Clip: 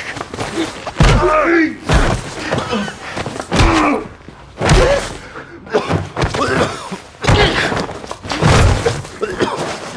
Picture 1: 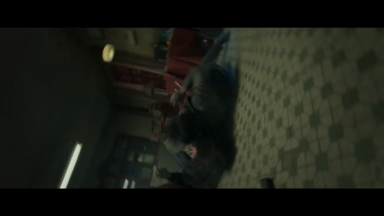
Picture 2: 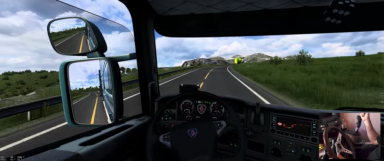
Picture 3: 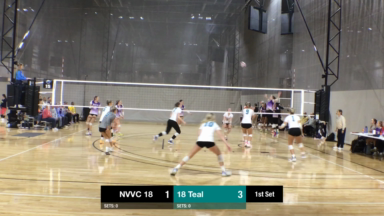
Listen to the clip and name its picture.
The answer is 1